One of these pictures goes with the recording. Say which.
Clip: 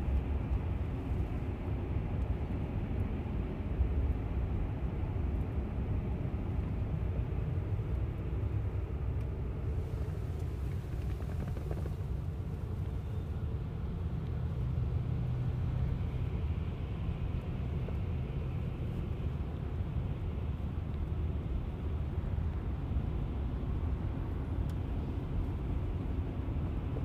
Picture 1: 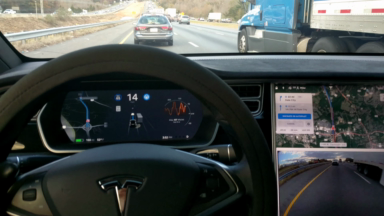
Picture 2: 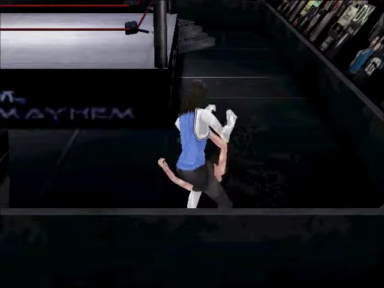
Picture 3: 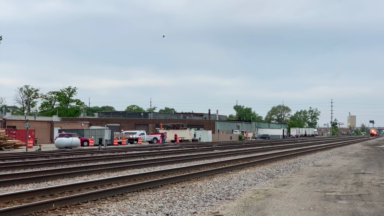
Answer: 1